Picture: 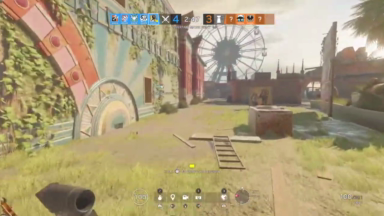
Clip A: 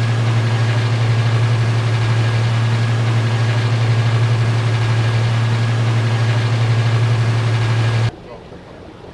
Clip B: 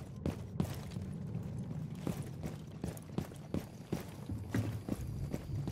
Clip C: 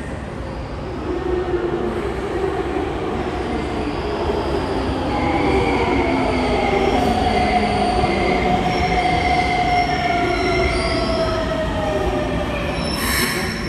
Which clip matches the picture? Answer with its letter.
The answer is B